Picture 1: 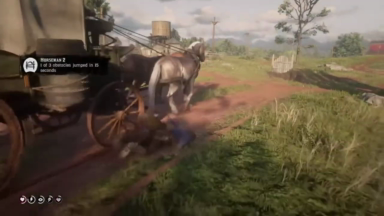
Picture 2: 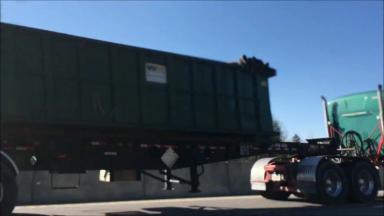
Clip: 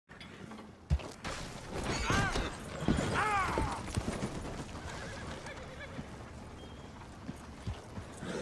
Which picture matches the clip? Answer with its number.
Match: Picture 1